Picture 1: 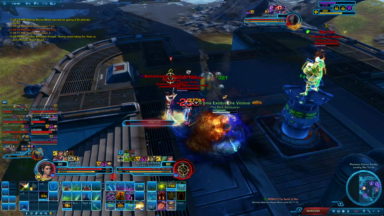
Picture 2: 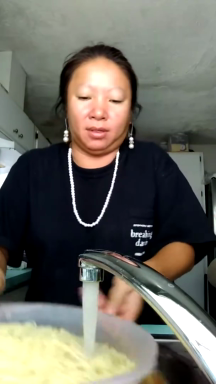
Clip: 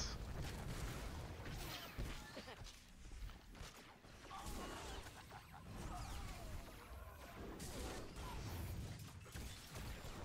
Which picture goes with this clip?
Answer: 1